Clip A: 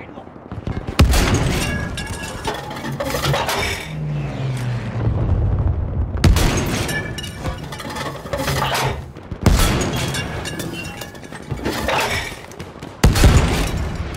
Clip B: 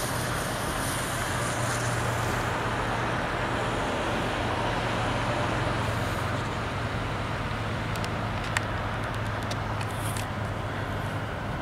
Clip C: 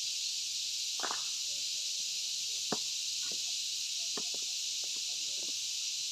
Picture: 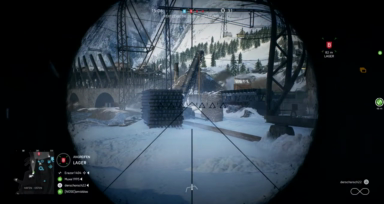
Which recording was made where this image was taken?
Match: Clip A